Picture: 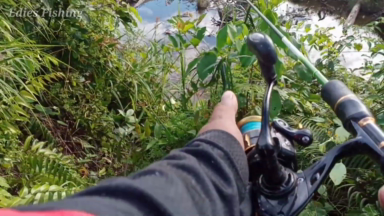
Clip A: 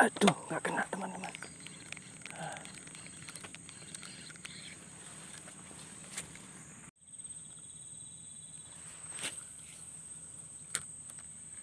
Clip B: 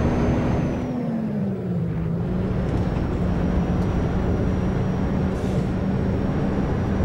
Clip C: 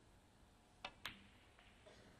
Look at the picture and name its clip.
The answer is A